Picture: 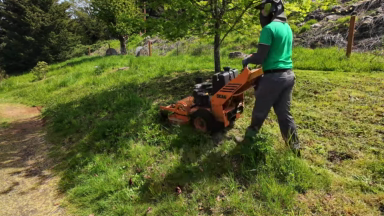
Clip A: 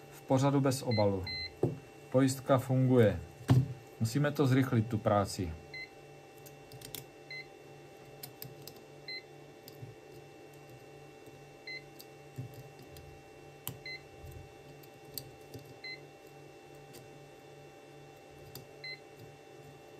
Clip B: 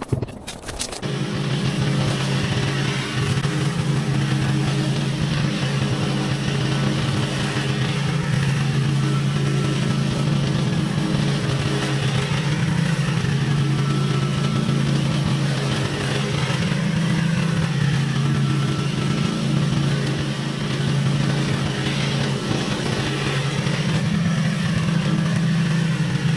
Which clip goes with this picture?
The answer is B